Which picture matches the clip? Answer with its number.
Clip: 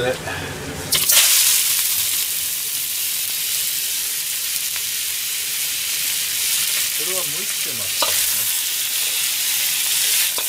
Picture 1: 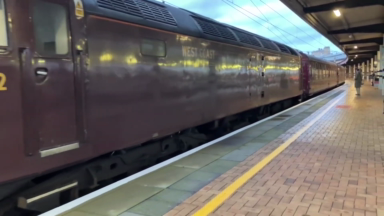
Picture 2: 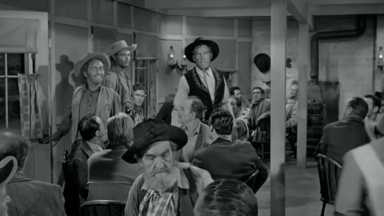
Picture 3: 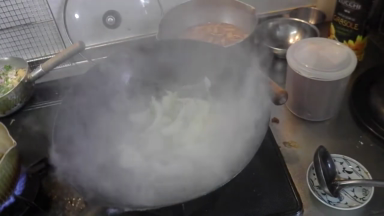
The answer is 3